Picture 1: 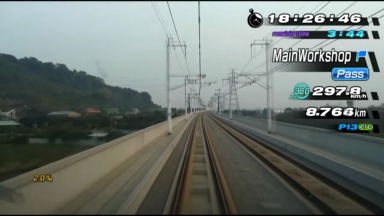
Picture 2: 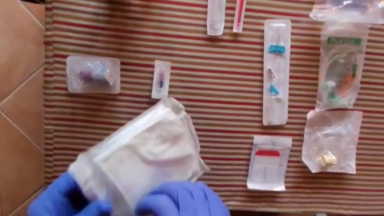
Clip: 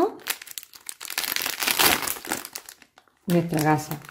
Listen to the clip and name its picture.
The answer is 2